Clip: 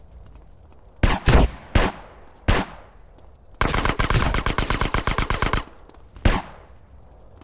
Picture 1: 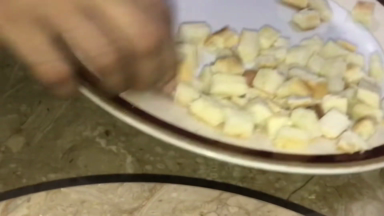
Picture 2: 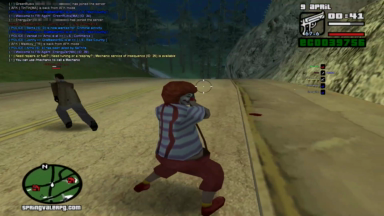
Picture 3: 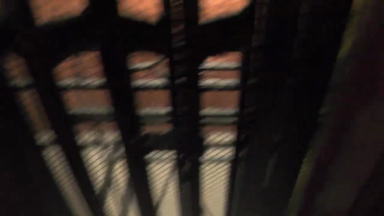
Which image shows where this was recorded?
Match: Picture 2